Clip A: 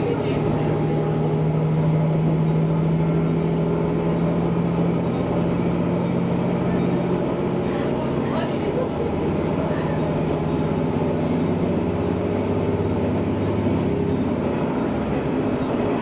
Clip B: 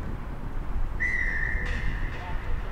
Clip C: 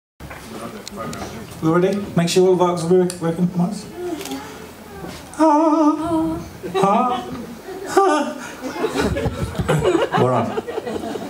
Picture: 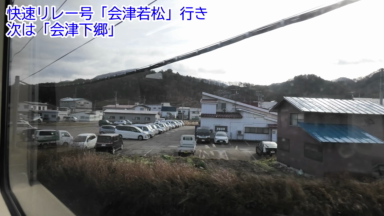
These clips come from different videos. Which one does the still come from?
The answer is A